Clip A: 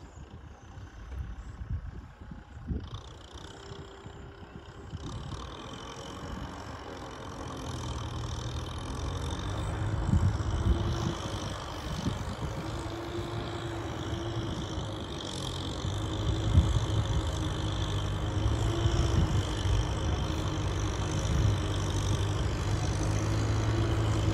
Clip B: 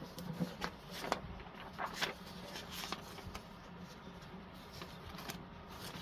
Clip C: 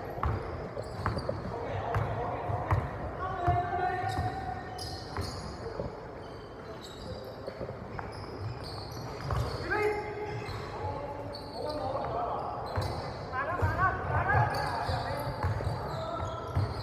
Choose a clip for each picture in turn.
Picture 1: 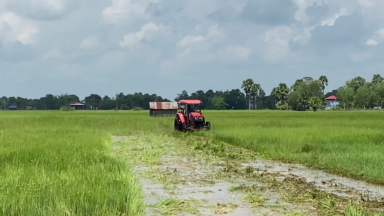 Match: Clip A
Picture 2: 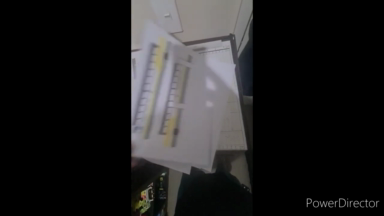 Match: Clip B